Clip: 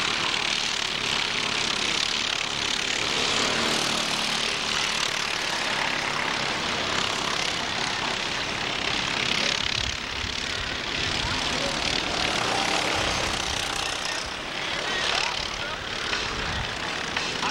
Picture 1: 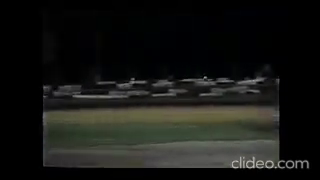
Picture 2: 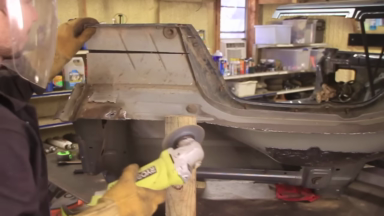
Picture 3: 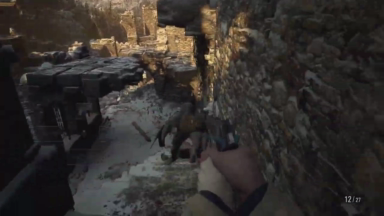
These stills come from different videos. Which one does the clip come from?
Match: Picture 1